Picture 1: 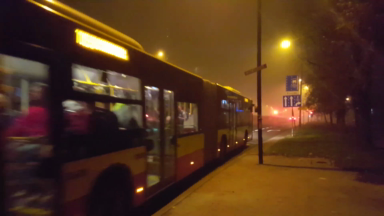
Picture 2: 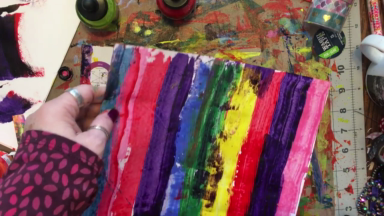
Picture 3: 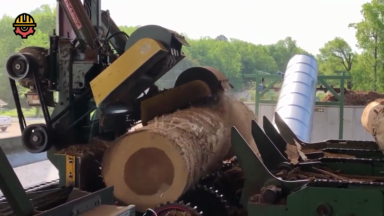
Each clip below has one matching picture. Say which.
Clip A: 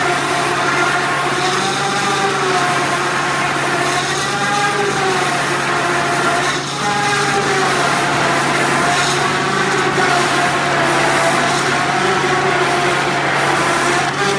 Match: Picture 3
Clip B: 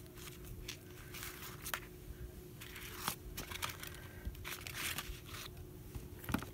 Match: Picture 2